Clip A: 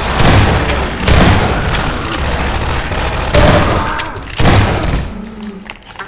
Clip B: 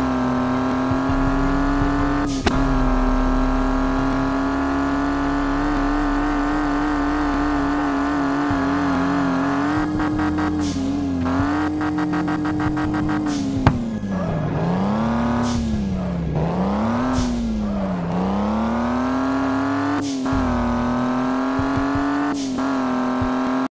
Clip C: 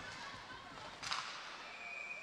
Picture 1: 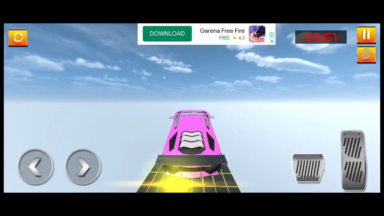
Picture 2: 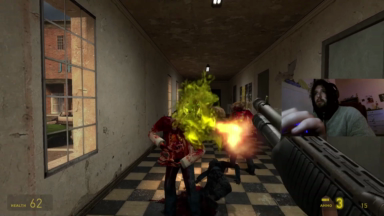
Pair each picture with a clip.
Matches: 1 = B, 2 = A